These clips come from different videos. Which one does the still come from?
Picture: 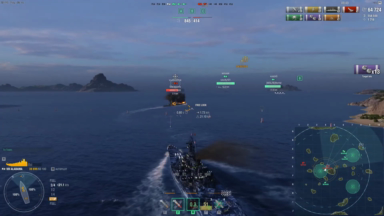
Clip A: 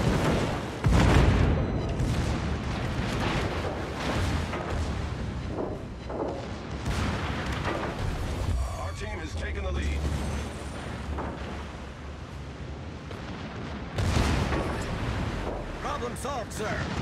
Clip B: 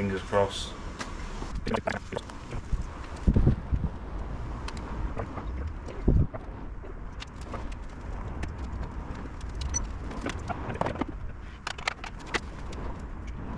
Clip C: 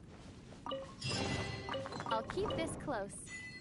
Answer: A